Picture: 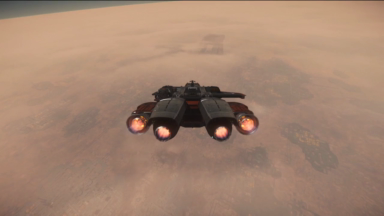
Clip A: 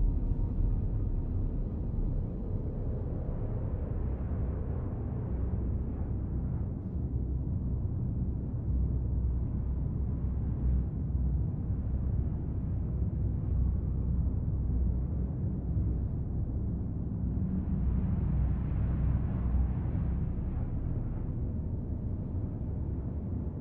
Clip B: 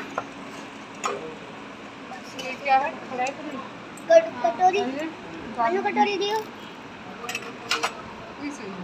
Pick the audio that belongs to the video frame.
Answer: A